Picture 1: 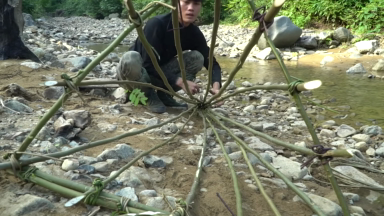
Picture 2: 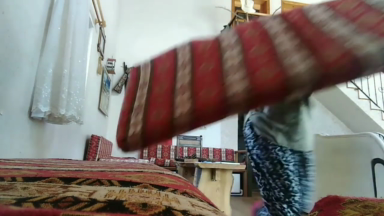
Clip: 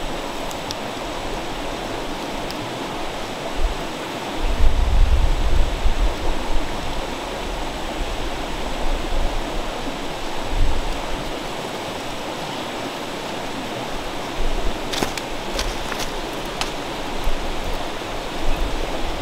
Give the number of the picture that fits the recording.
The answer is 1